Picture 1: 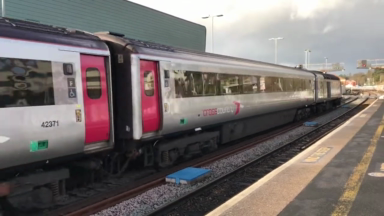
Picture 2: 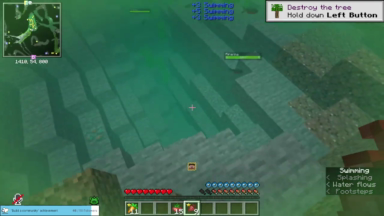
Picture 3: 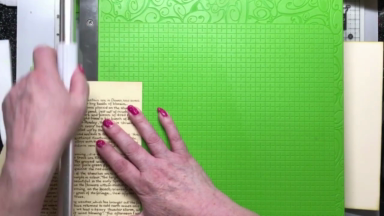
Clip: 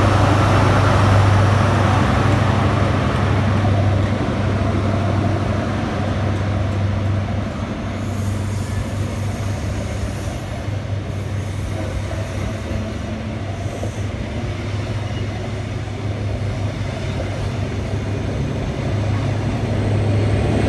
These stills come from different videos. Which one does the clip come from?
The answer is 1